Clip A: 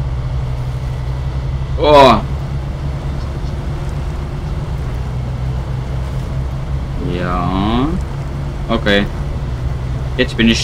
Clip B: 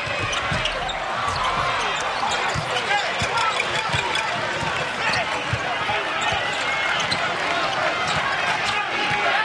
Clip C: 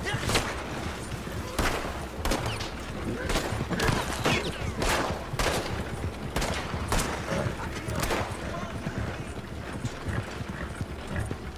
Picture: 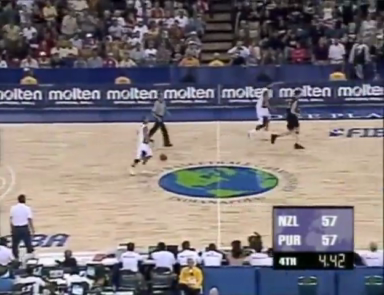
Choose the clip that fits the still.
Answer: B